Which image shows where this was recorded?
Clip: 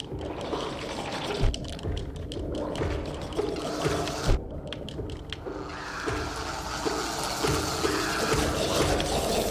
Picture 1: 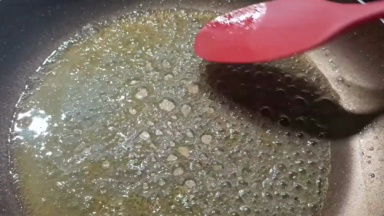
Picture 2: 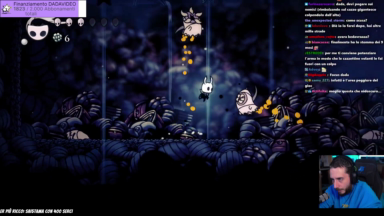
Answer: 2